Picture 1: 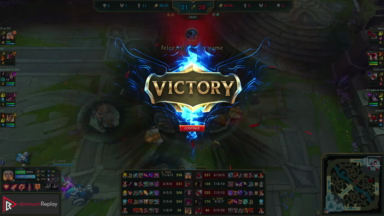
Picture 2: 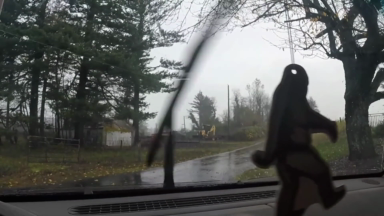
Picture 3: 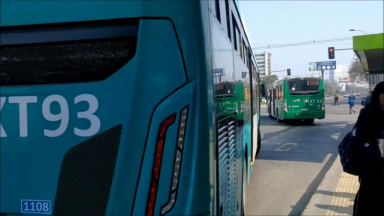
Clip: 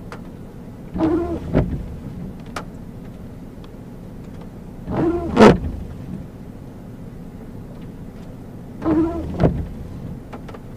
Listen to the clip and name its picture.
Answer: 2